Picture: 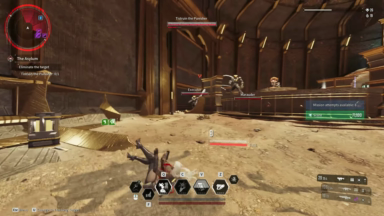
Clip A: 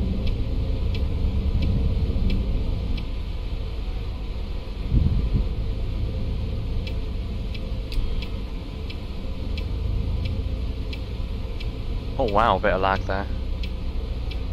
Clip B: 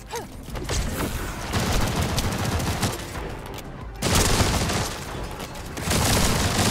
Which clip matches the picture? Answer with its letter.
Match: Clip B